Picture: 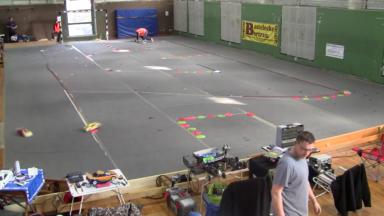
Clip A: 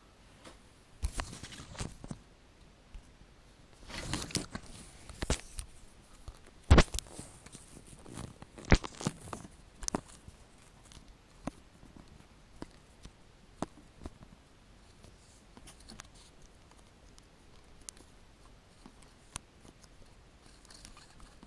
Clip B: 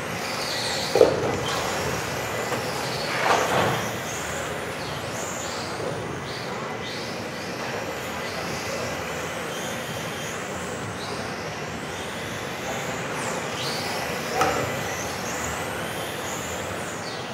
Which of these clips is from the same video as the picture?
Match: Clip B